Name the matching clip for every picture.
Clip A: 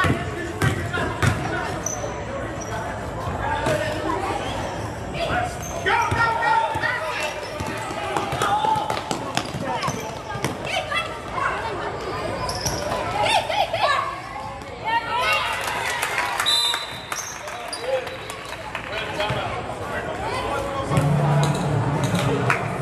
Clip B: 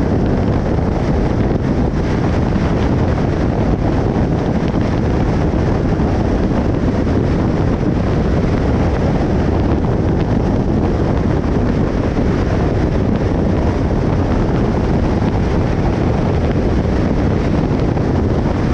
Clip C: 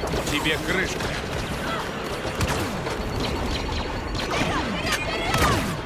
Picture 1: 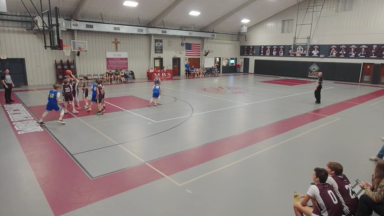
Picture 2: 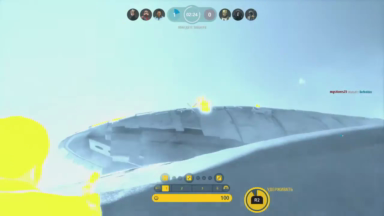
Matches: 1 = A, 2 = C